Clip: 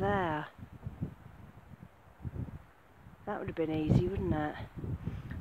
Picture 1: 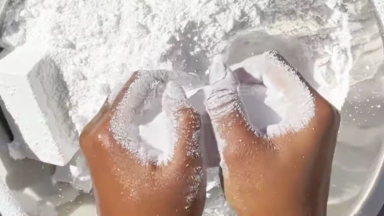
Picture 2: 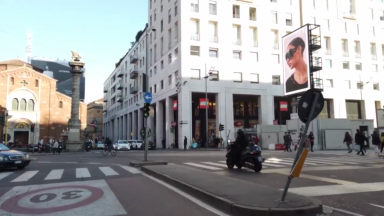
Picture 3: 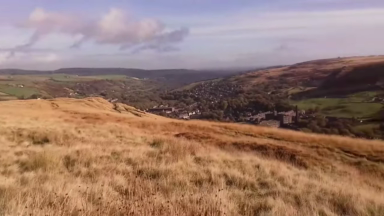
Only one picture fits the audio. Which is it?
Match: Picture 3